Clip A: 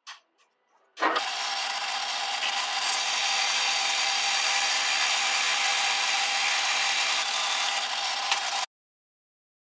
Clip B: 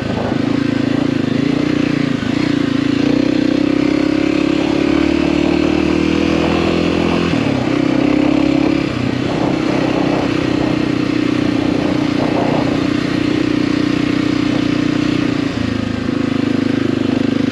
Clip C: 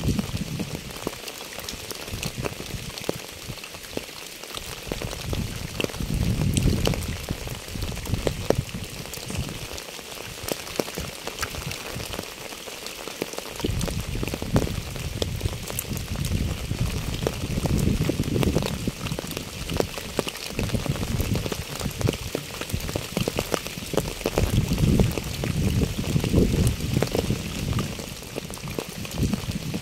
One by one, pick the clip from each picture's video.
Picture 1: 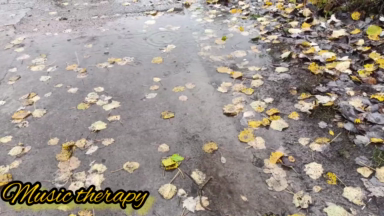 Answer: C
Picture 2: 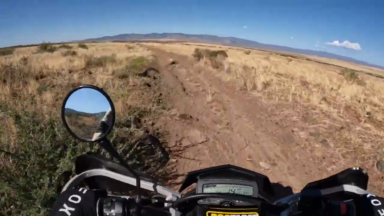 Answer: B